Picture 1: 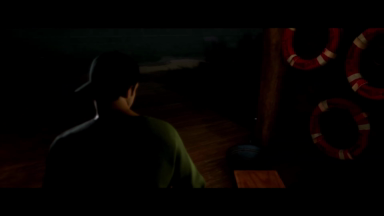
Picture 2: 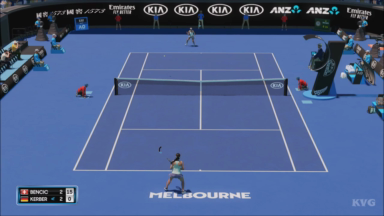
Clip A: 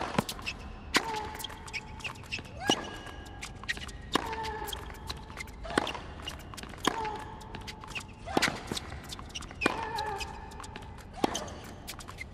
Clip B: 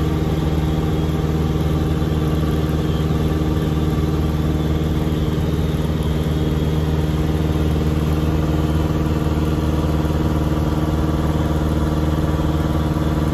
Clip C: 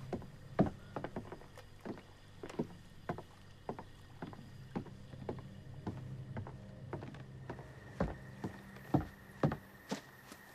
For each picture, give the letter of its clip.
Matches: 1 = C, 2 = A